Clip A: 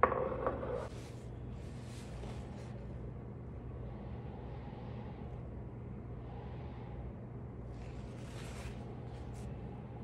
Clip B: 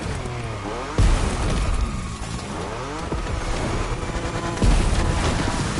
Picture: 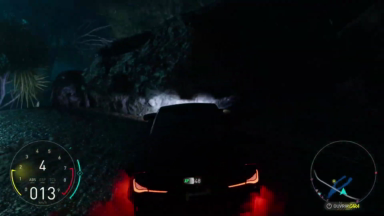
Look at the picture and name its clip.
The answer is B